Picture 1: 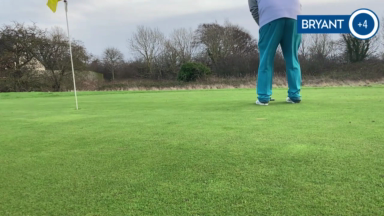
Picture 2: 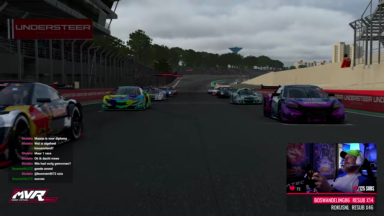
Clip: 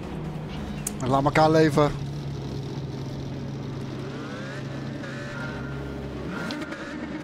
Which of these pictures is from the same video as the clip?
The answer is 2